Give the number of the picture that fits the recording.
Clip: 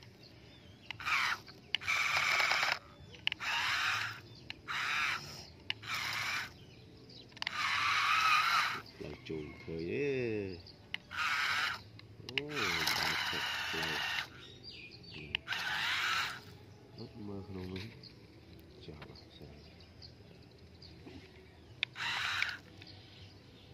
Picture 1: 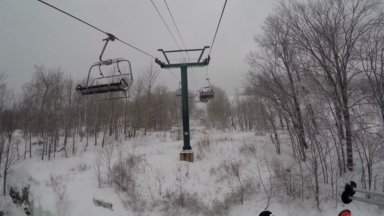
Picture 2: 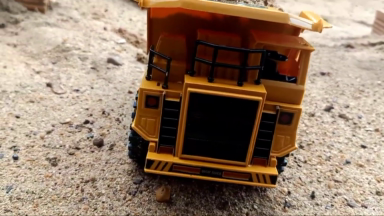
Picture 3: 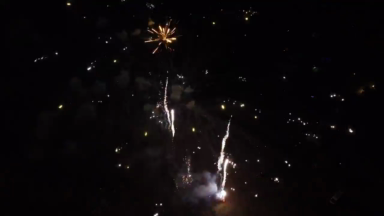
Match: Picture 2